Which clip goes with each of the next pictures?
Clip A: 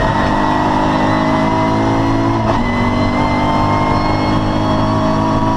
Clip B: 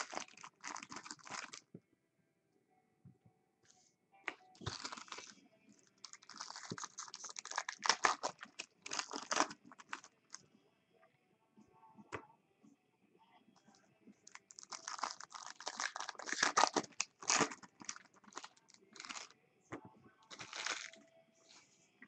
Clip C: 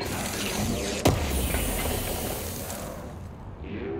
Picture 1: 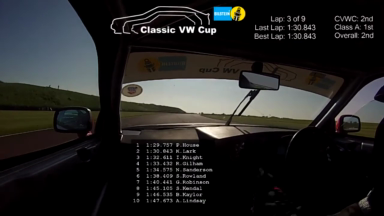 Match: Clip A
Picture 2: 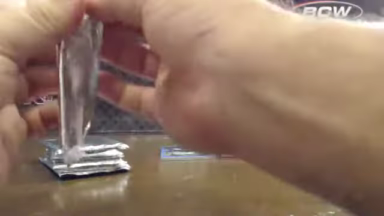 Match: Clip B